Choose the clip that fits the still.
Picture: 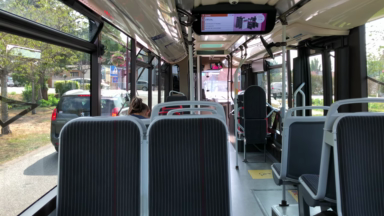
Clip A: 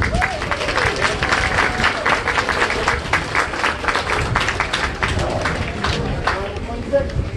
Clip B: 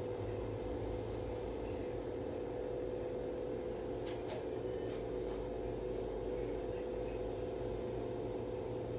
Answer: B